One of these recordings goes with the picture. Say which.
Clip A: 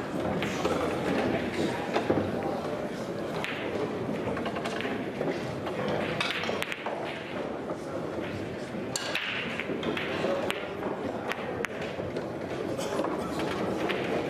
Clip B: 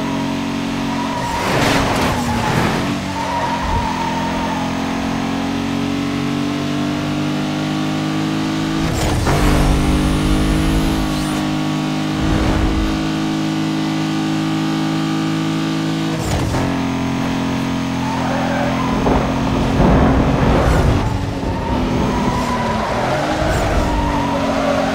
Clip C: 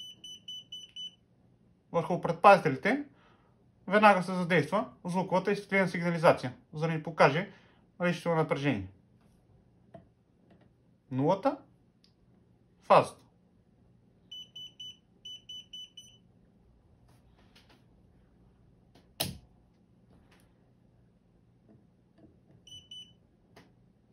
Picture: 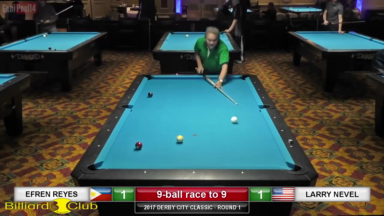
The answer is A